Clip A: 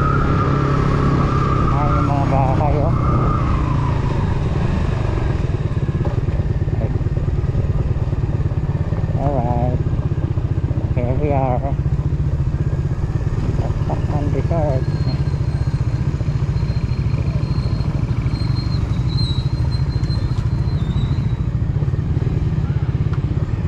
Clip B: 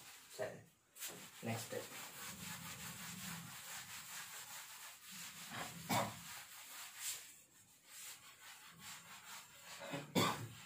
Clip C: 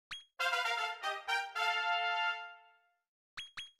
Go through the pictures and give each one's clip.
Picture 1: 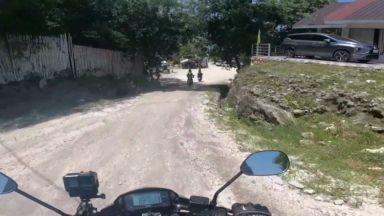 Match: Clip A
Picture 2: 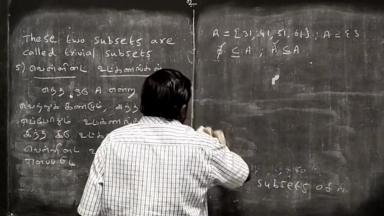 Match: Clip B